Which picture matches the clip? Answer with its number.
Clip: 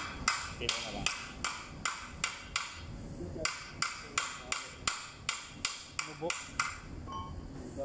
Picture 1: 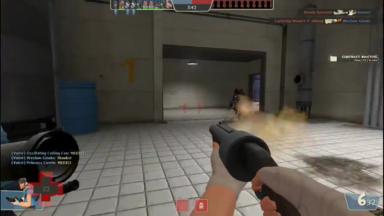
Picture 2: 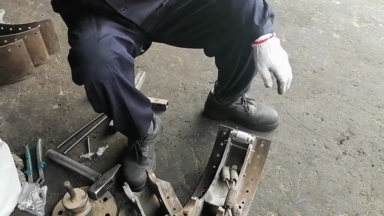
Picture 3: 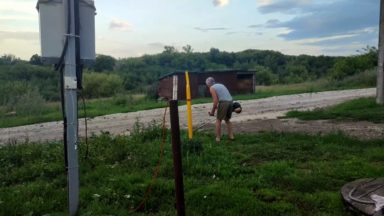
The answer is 2